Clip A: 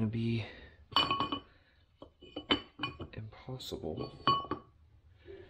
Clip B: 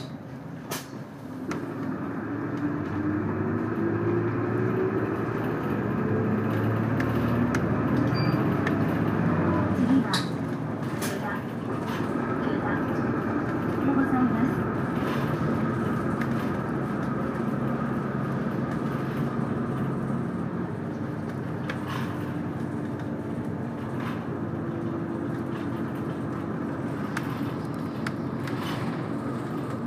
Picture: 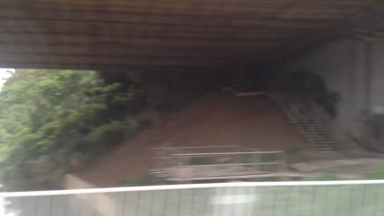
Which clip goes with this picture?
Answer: B